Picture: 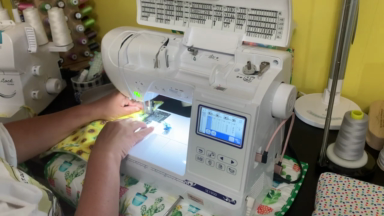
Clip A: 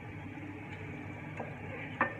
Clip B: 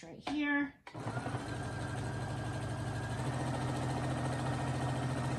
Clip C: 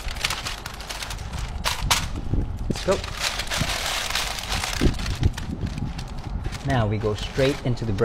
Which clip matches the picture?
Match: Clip B